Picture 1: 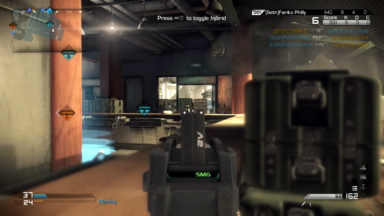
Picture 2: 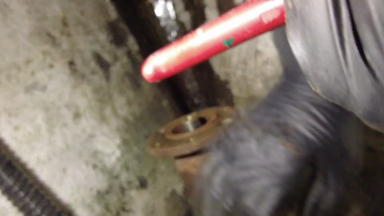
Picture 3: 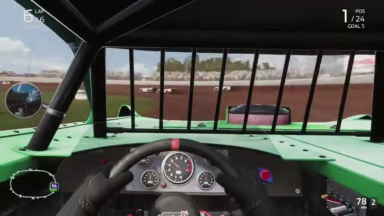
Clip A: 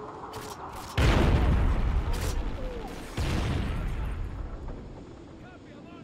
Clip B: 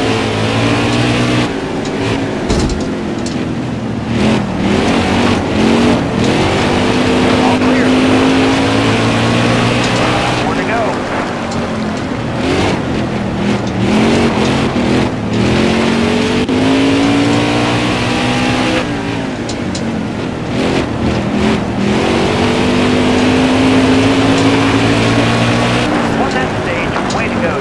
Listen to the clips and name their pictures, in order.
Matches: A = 1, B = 3